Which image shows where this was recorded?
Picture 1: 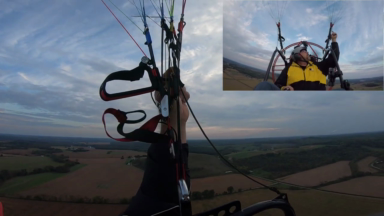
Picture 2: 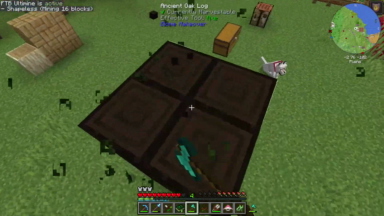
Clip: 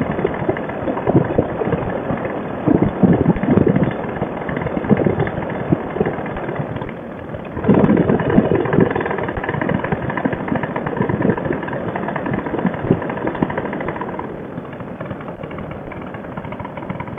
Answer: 1